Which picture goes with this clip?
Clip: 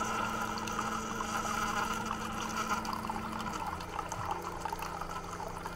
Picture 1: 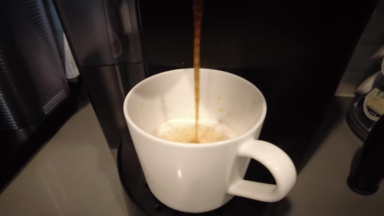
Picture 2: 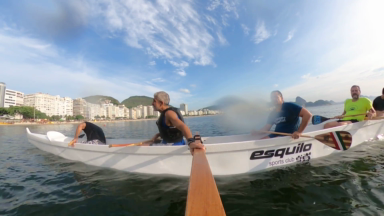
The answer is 1